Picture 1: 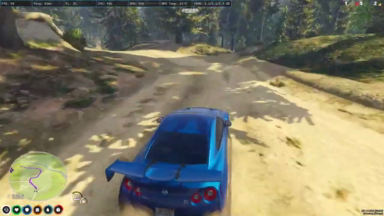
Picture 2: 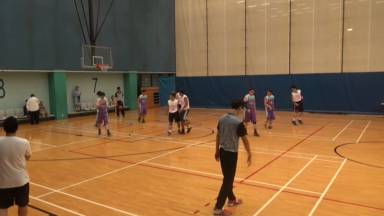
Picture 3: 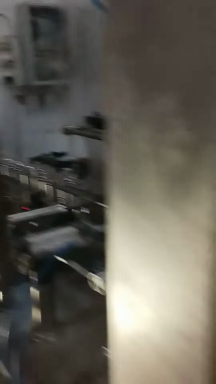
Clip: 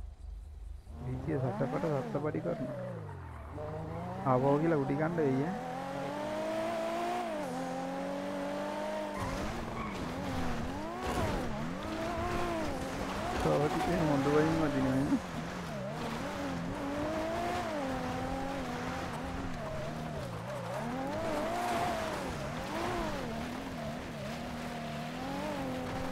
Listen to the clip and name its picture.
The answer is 1